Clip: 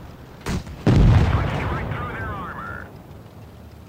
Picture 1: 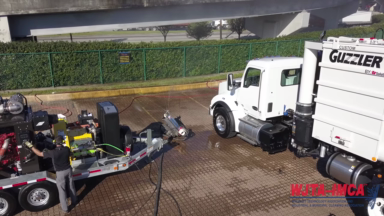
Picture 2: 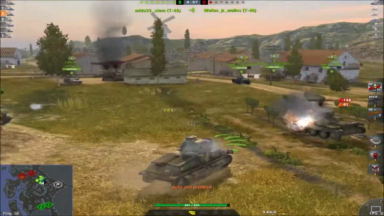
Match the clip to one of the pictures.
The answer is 2